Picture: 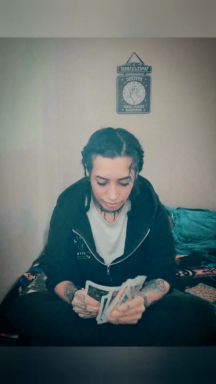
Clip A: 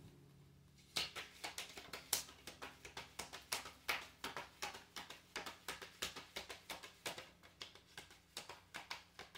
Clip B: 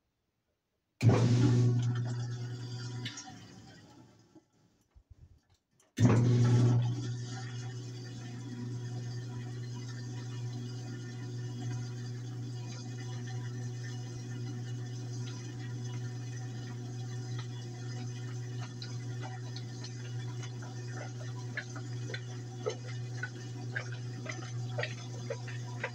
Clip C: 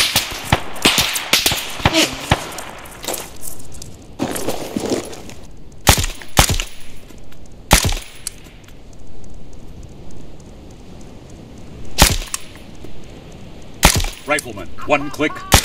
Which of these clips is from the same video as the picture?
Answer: A